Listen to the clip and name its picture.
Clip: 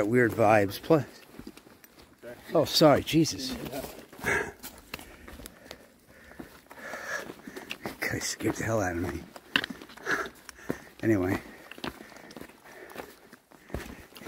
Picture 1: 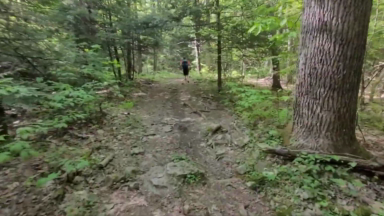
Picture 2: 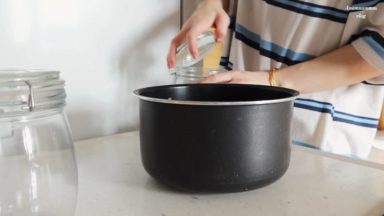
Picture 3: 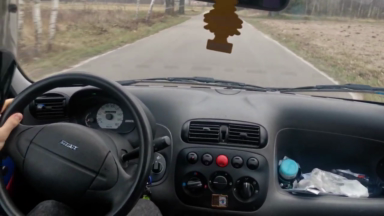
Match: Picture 1